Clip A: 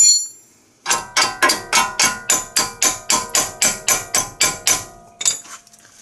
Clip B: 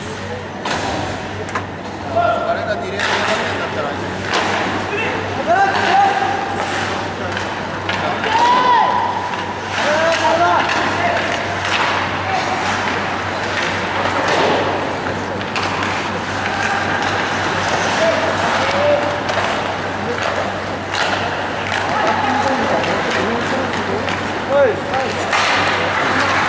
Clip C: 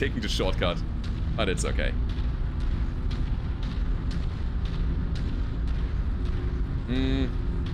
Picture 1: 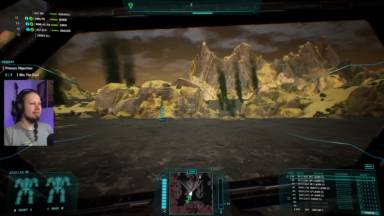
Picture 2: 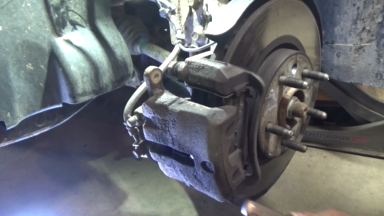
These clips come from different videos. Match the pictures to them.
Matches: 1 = C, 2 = A